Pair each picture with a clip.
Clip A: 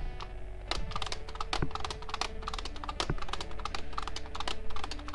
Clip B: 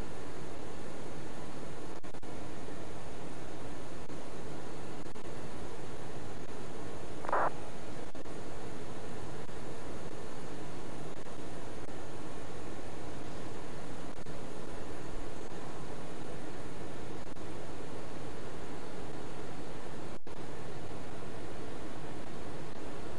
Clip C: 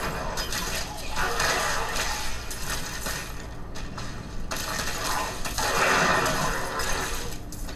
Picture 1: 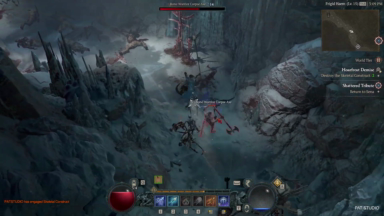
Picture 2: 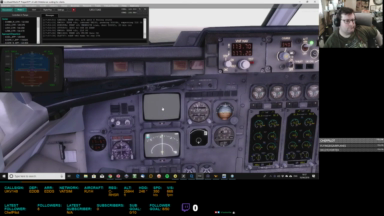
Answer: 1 C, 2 B